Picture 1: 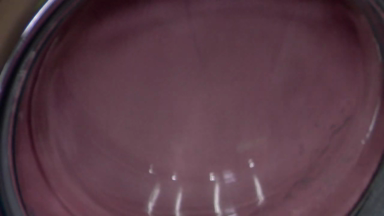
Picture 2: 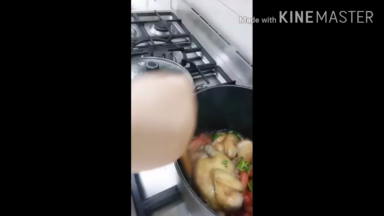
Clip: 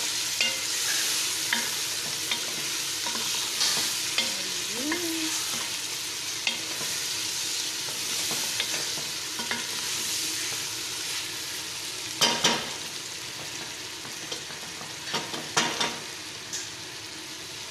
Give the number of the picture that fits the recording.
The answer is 2